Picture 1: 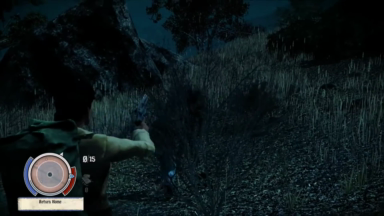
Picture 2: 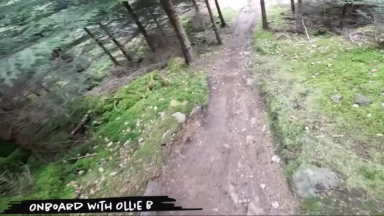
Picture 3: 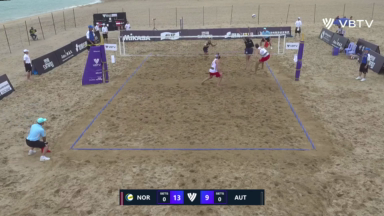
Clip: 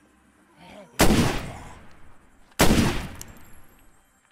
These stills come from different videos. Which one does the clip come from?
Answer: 1